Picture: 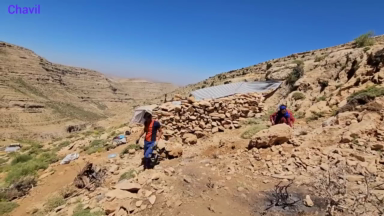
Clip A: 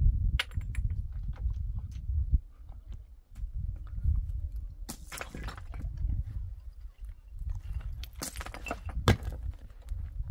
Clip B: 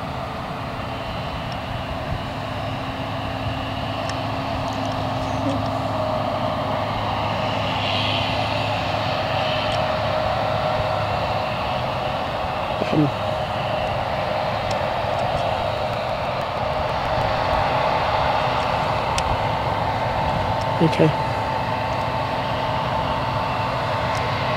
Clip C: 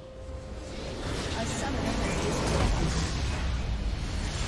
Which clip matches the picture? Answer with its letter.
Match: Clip A